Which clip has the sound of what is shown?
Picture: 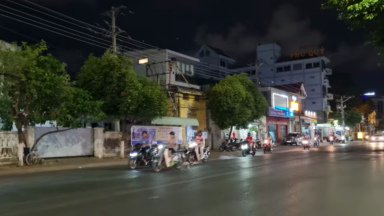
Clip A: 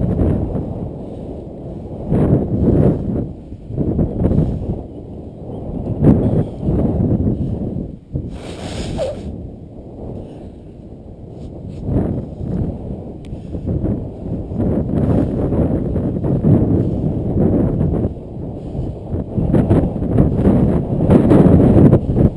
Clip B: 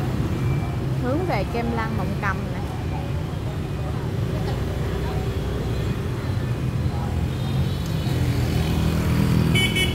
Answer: B